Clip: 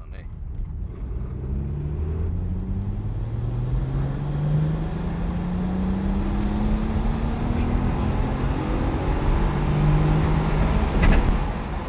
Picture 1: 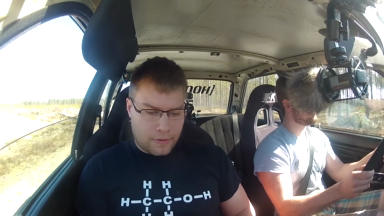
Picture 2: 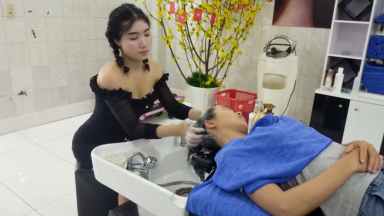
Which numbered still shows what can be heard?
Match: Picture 1